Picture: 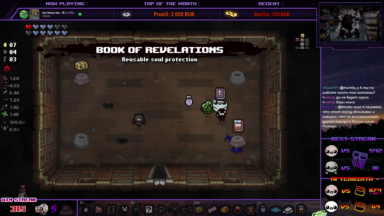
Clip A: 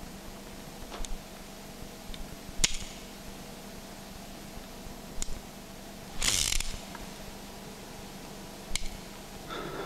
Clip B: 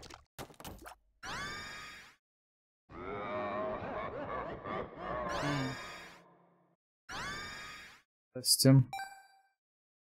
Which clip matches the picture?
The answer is B